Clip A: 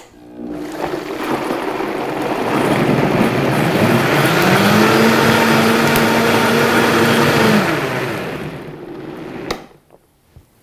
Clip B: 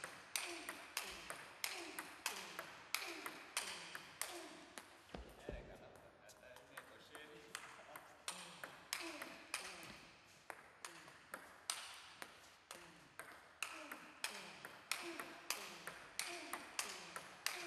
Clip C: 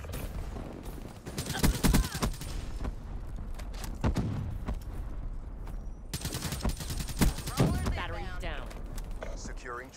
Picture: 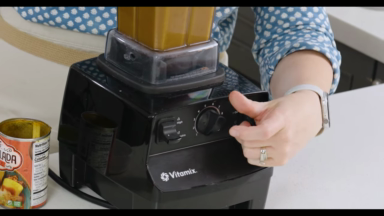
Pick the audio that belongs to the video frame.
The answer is A